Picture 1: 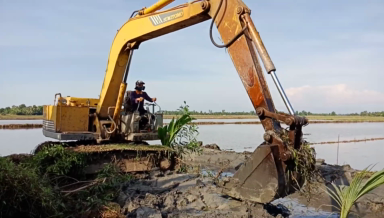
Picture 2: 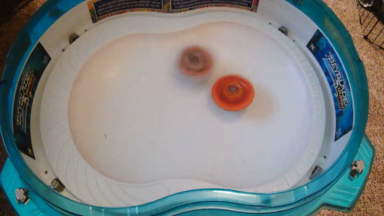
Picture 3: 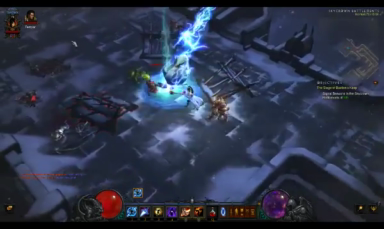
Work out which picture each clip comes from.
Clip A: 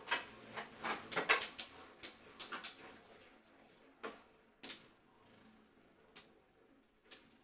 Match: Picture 2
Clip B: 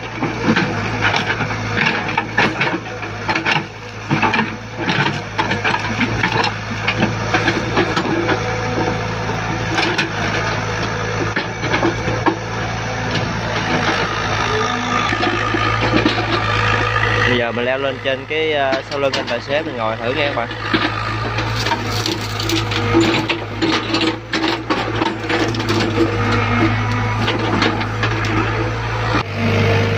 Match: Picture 1